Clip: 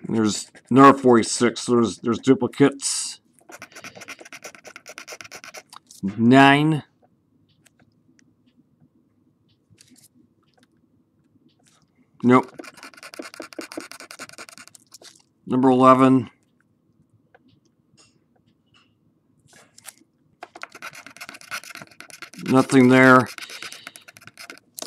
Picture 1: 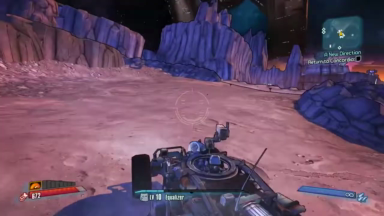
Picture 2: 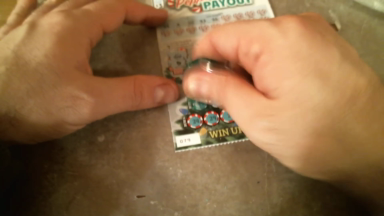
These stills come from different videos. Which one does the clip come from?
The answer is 2